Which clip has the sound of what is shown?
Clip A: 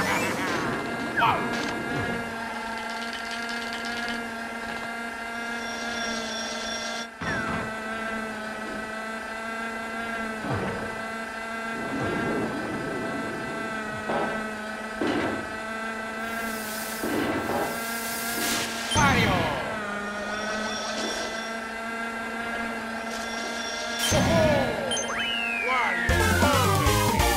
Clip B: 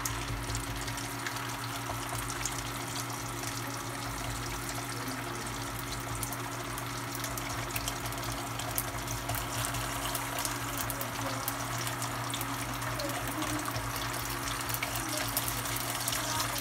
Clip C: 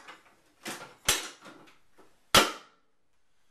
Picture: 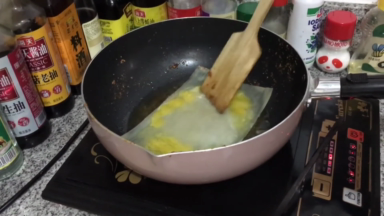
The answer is B